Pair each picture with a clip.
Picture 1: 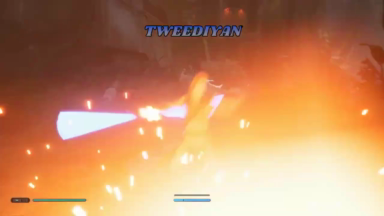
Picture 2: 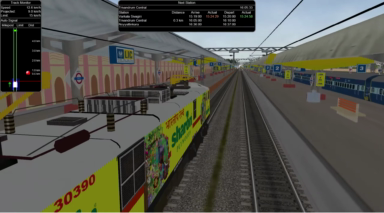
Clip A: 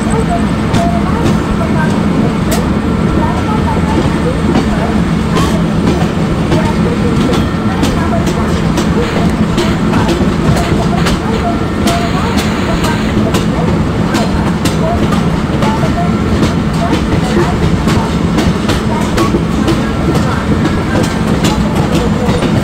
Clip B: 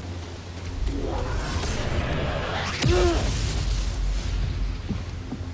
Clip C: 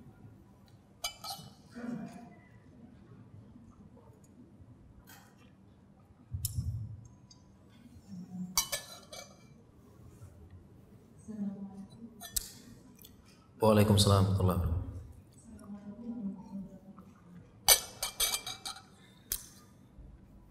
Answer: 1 B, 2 A